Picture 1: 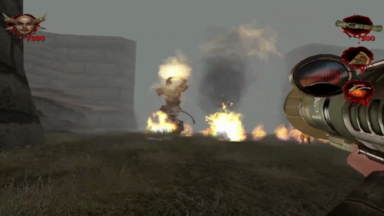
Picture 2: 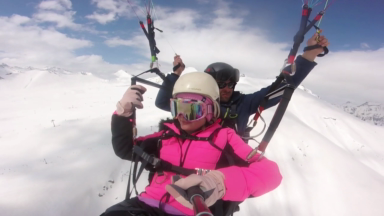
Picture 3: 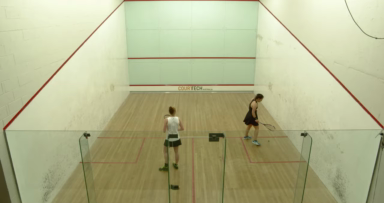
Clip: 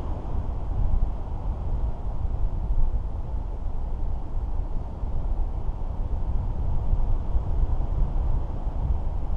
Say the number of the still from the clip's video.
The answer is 2